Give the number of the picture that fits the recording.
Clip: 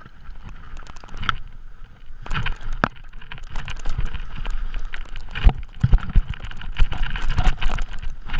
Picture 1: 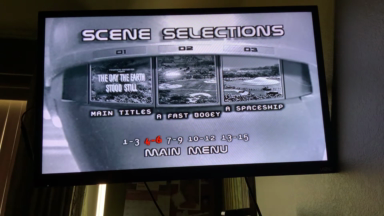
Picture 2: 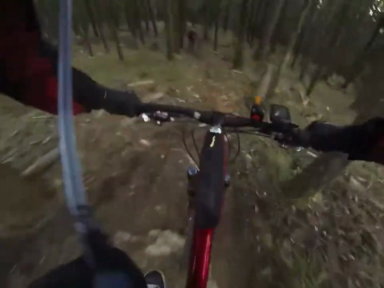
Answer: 2